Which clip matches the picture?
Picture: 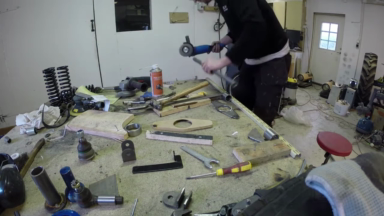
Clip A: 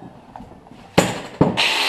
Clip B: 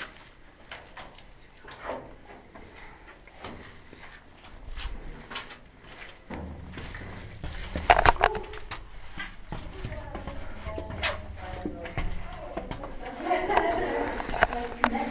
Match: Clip A